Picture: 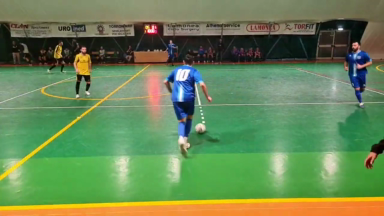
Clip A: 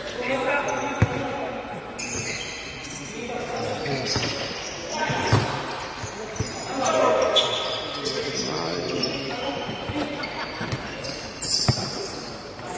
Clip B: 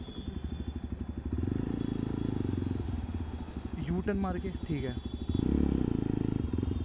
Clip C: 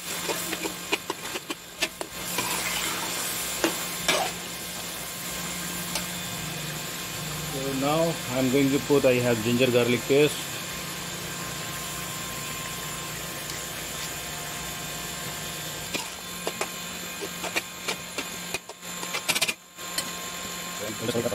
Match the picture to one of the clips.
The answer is A